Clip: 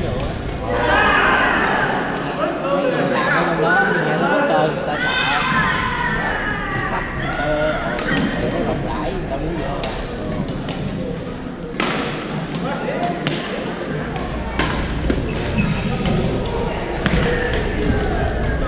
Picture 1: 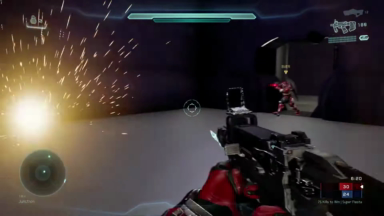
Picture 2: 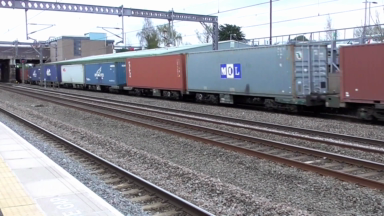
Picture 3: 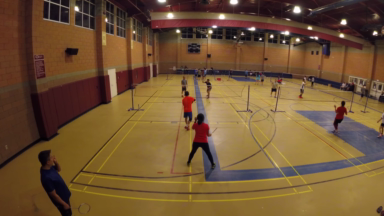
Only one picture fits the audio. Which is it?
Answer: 3